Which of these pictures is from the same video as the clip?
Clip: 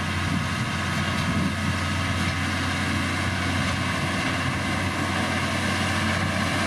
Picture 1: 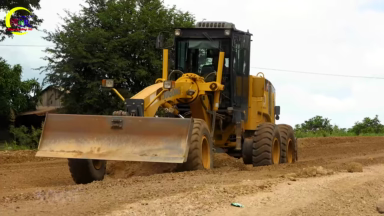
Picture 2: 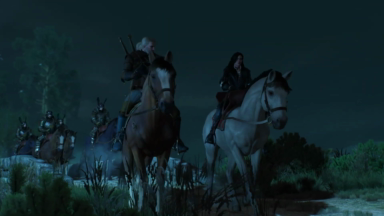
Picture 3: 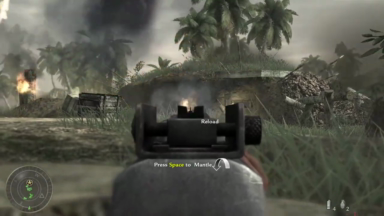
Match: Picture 1